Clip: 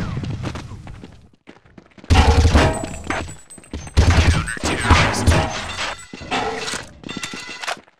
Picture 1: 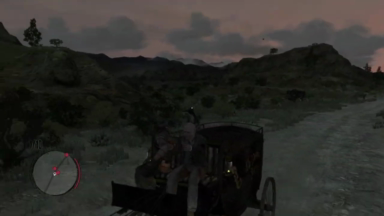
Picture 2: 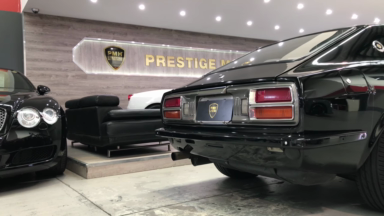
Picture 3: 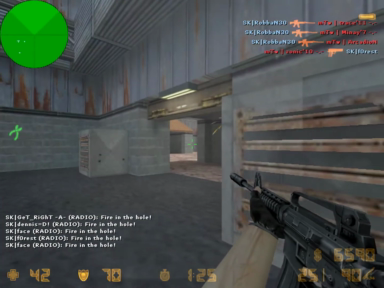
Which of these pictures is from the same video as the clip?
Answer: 3